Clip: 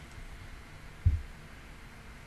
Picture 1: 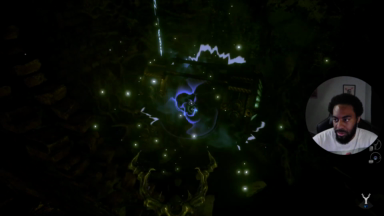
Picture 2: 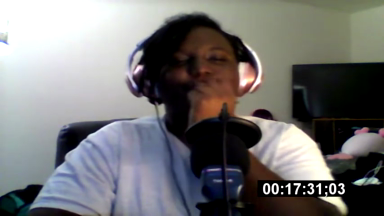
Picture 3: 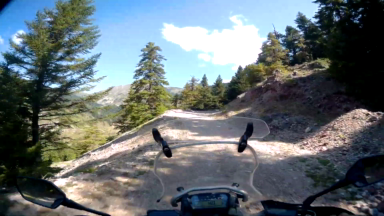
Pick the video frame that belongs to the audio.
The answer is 2